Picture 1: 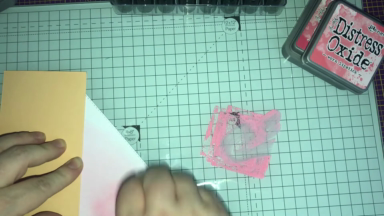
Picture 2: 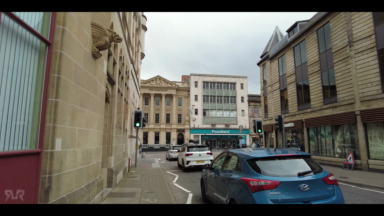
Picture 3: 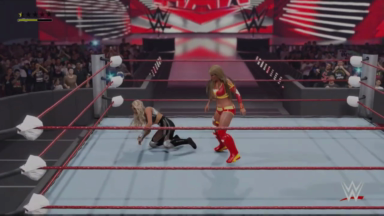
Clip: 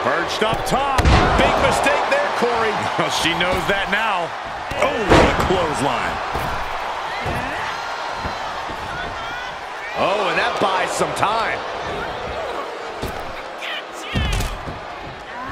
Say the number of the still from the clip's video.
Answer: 3